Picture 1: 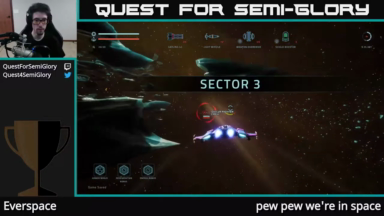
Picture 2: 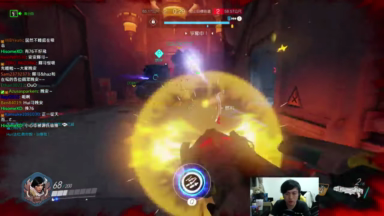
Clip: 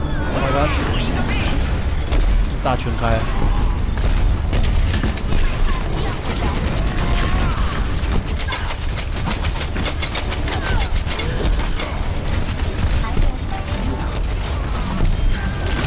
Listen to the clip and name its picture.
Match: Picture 2